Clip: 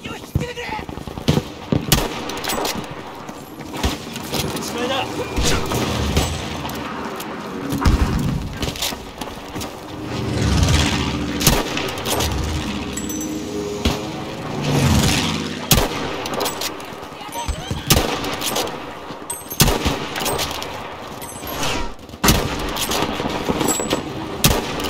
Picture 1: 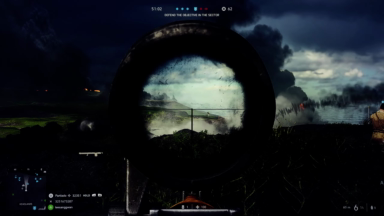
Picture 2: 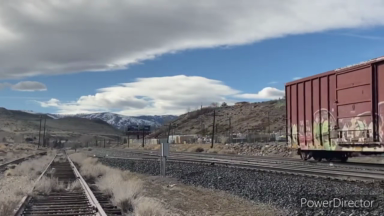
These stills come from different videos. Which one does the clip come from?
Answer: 1